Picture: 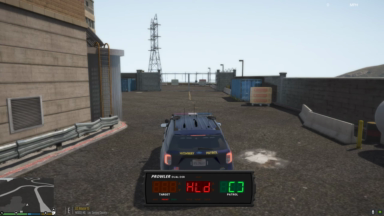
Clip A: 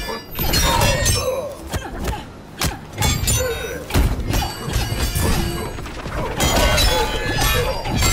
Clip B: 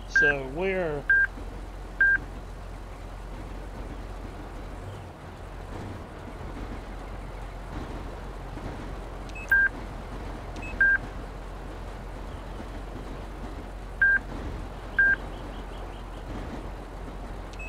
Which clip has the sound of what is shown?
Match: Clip B